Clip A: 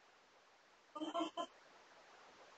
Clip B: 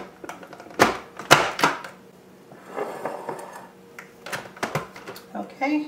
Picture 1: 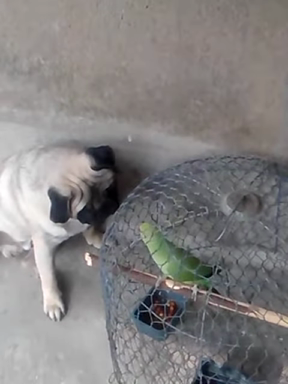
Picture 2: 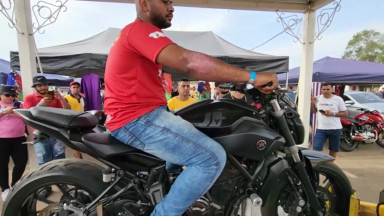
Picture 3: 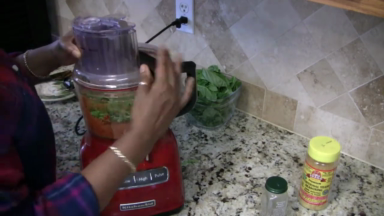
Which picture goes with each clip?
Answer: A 1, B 3